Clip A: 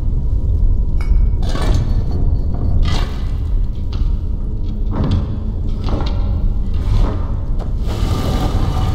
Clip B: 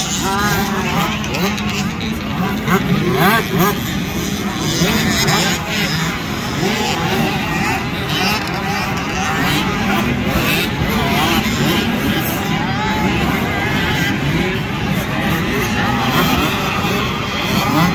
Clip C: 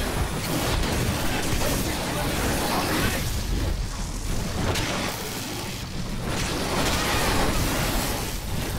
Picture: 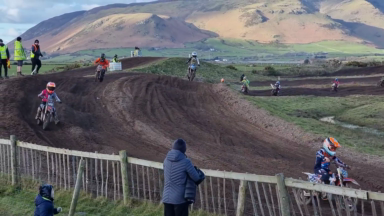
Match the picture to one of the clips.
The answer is B